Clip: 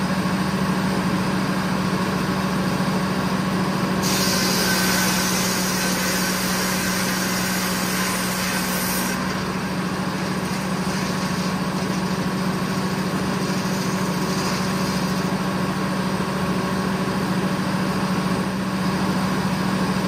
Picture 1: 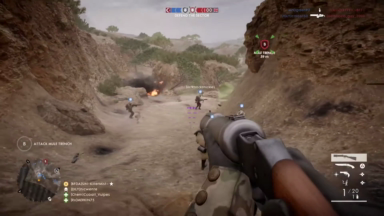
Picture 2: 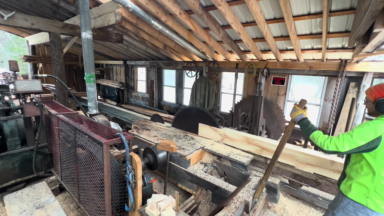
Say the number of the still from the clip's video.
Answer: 2